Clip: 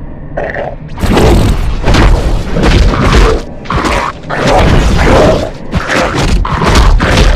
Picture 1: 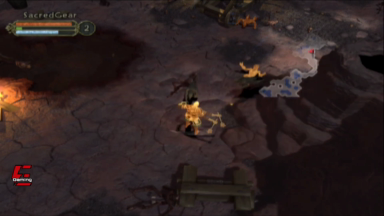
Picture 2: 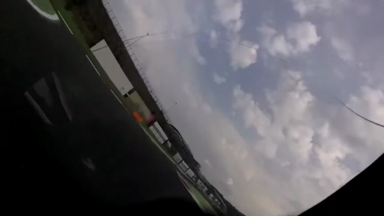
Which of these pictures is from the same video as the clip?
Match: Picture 1